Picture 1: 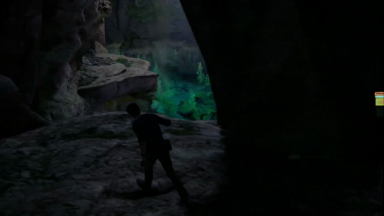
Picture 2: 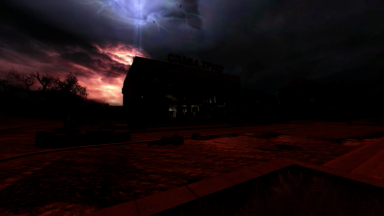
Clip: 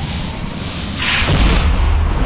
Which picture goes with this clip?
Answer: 2